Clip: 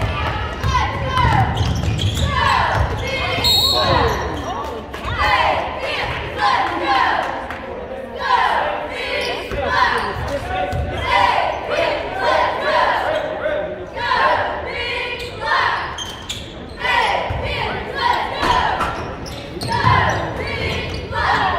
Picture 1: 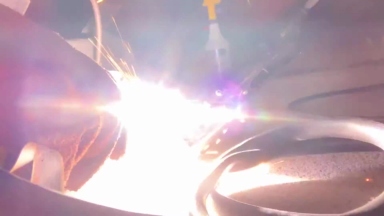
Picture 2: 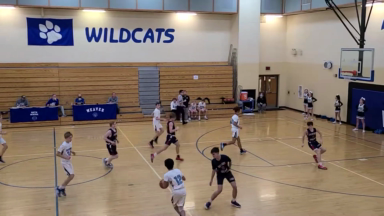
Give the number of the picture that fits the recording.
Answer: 2